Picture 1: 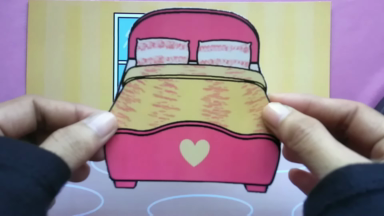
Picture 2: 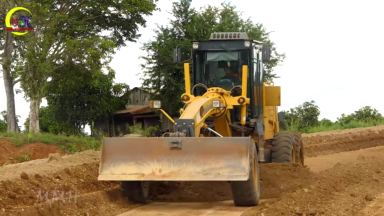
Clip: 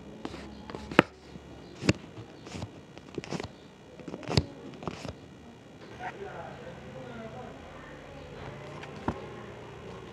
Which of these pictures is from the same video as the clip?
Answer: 1